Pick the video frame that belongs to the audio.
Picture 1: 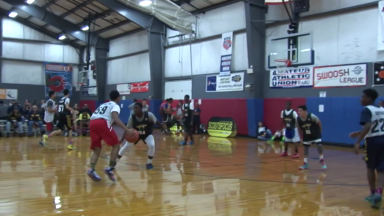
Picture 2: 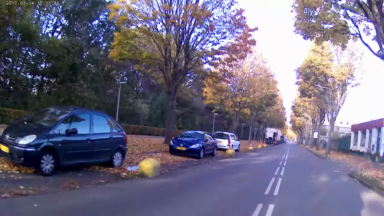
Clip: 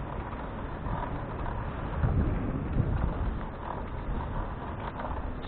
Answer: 2